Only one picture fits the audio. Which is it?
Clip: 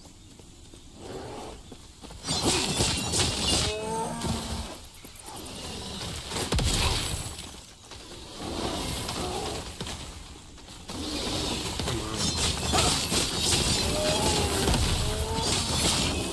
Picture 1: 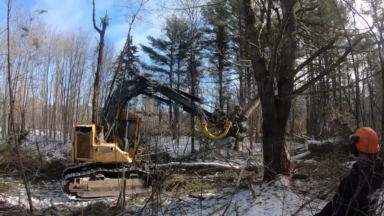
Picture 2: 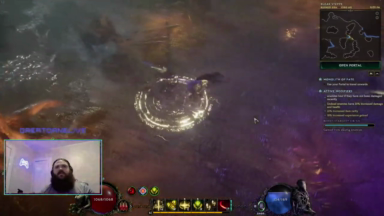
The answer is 2